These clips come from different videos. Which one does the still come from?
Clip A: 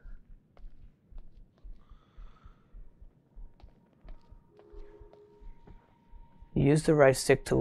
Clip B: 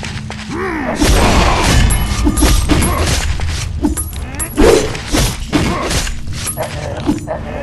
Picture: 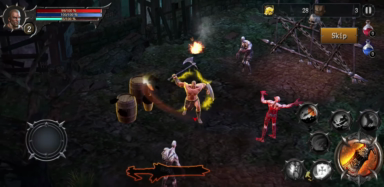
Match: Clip B